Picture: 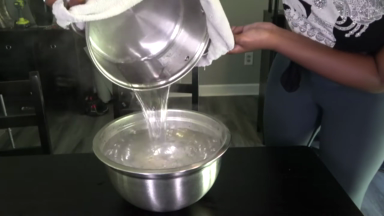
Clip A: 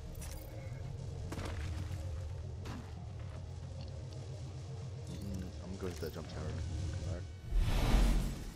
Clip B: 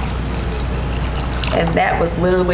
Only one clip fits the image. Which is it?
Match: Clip B